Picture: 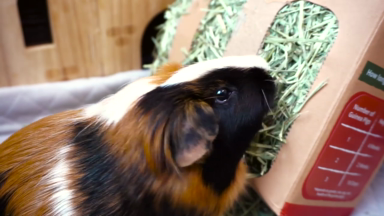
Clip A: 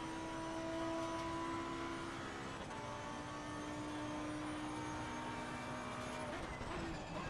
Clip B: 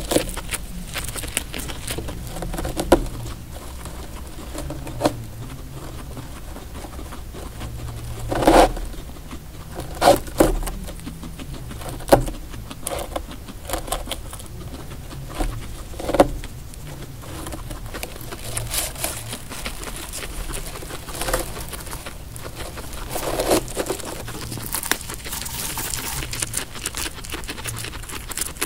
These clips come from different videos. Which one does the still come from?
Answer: B